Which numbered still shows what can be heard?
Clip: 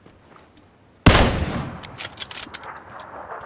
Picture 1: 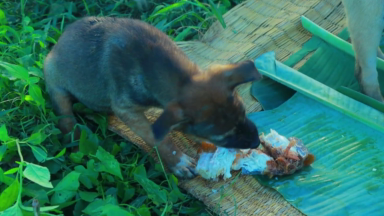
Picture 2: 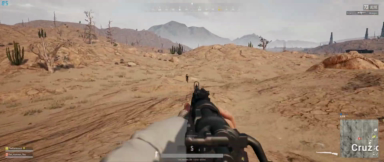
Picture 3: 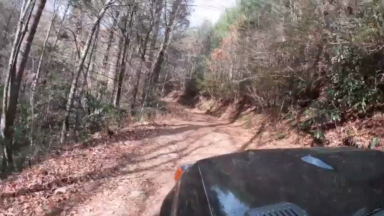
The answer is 2